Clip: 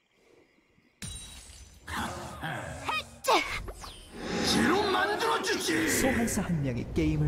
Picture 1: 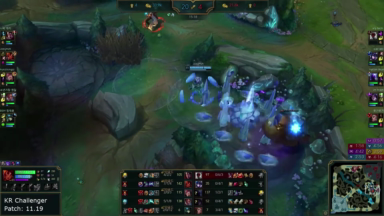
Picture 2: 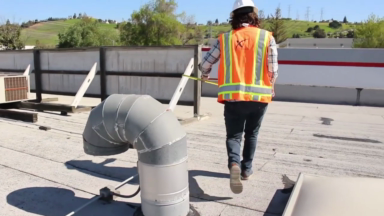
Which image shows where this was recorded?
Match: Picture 1